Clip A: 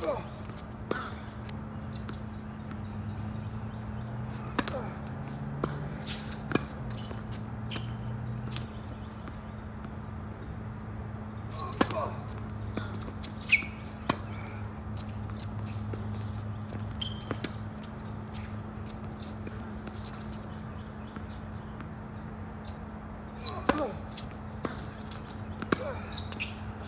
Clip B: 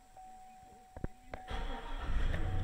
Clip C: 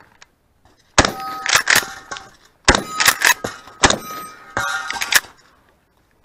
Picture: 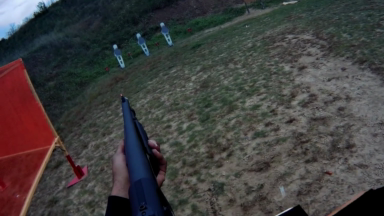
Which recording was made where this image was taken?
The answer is C